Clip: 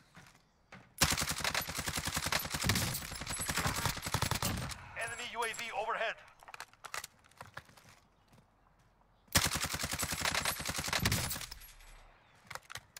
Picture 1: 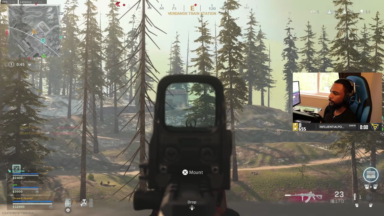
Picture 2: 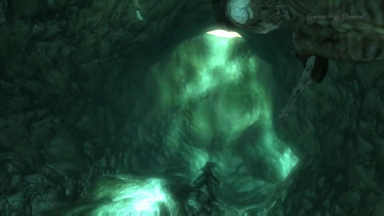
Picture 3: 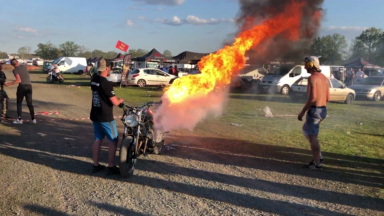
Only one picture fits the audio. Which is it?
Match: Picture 1